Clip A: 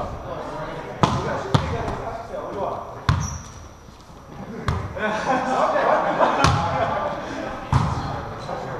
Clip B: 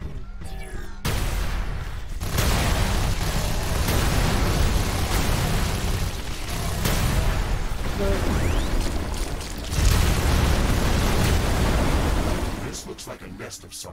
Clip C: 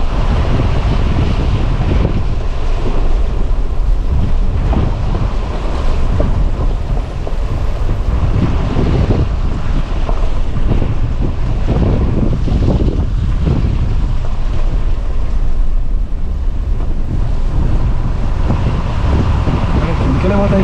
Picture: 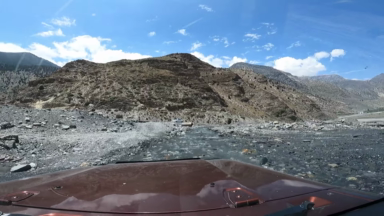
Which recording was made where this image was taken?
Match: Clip C